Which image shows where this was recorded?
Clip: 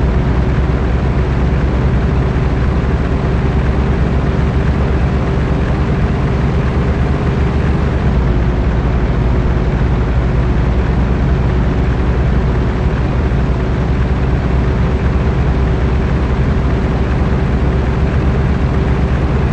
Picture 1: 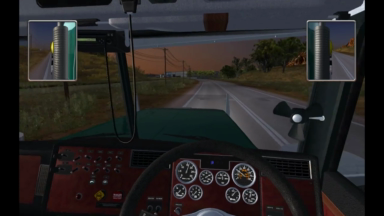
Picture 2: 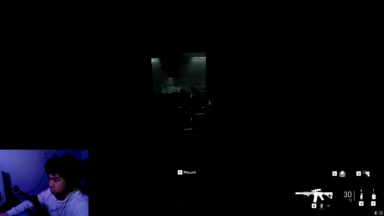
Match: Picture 1